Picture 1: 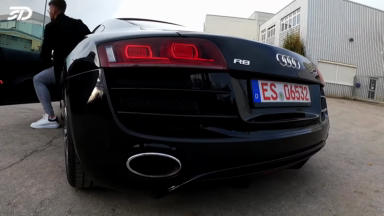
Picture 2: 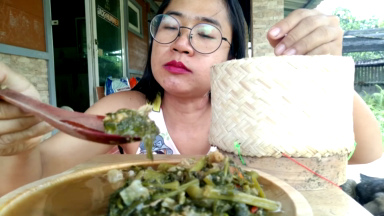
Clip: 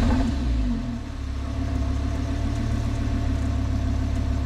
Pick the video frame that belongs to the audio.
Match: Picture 1